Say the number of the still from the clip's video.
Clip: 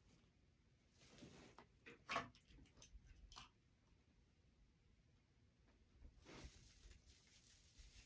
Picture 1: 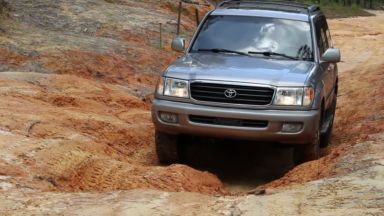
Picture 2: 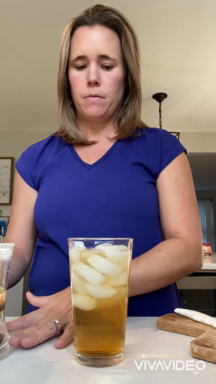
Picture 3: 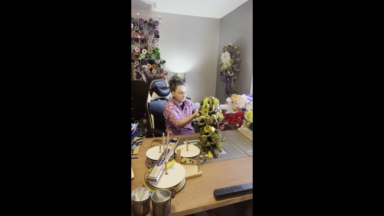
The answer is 3